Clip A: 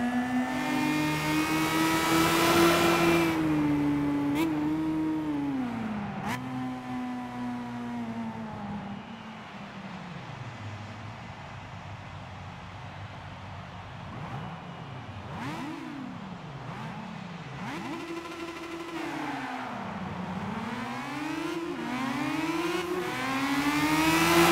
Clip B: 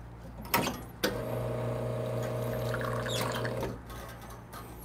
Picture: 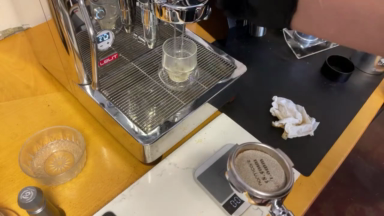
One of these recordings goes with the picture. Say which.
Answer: B